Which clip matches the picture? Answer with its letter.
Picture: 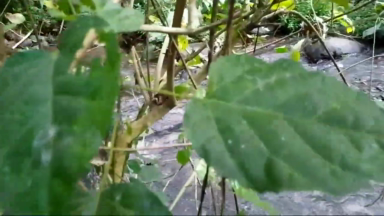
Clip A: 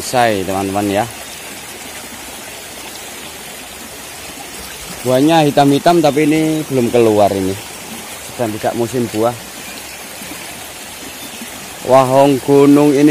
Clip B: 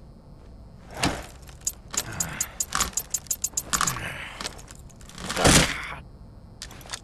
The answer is A